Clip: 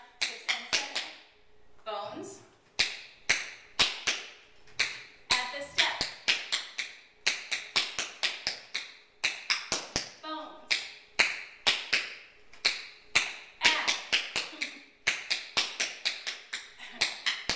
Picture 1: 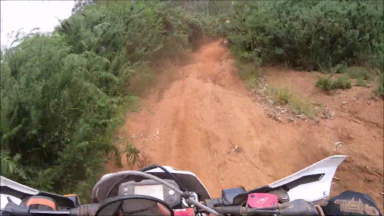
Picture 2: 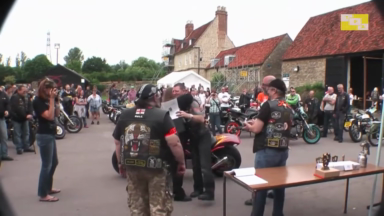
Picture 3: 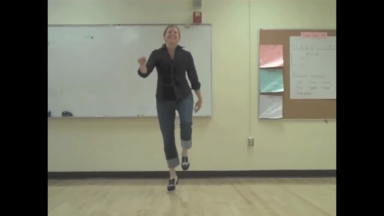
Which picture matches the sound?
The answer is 3